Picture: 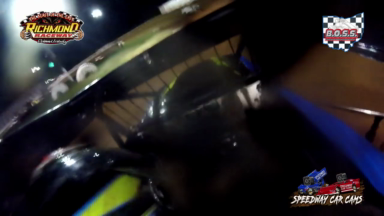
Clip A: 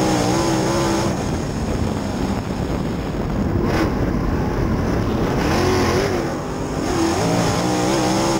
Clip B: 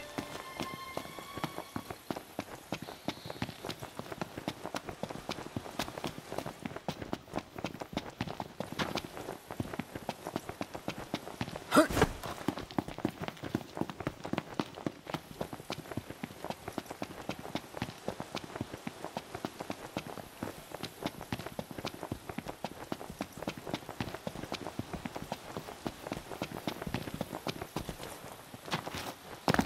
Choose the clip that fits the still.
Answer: A